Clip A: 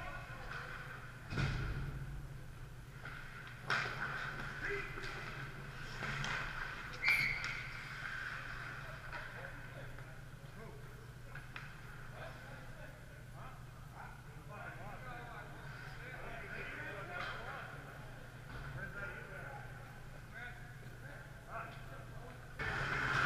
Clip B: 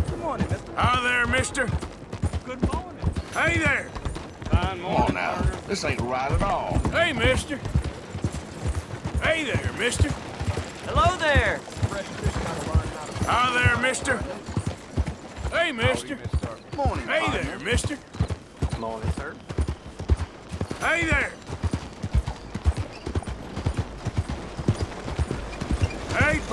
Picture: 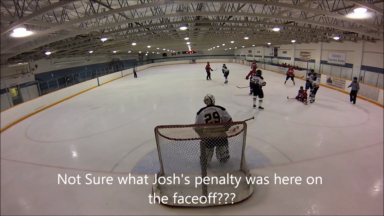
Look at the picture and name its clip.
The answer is A